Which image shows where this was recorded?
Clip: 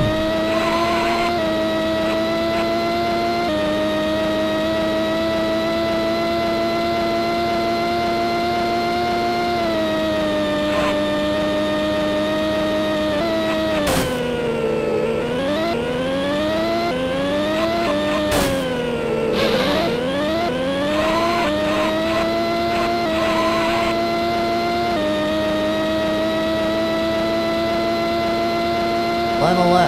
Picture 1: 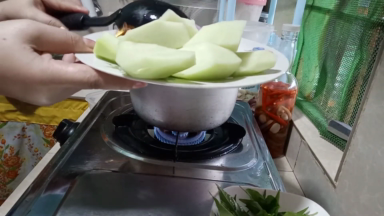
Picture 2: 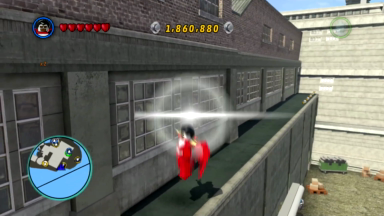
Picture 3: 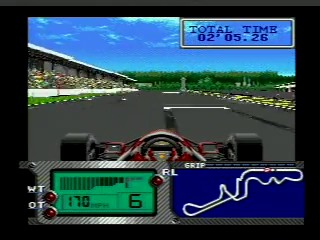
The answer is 3